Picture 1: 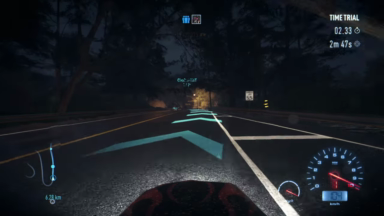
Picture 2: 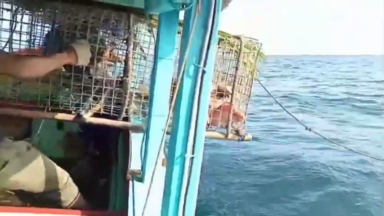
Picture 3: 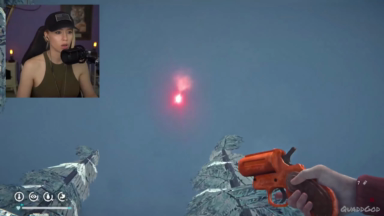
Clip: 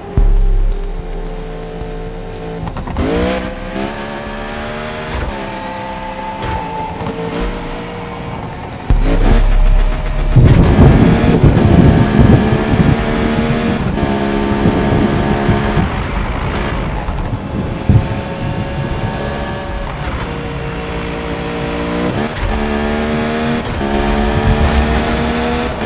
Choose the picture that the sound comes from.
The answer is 1